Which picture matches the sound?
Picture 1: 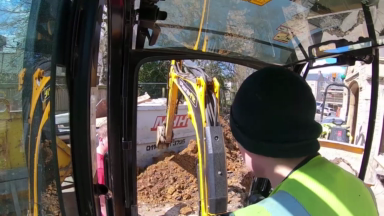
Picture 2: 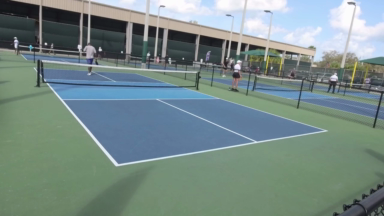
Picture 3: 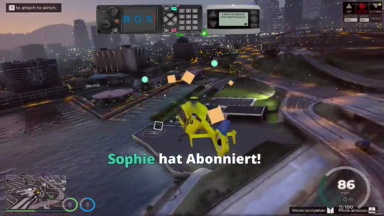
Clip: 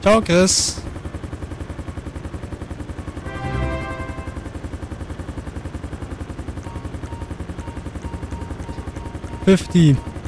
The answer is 3